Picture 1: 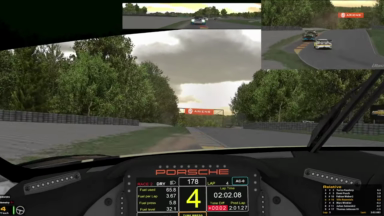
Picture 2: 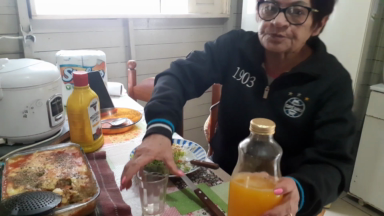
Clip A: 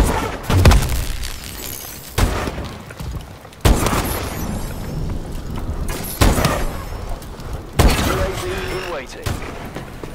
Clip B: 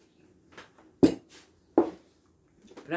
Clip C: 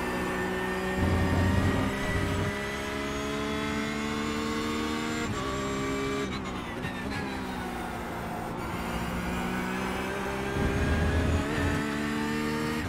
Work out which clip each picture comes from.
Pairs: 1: C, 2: B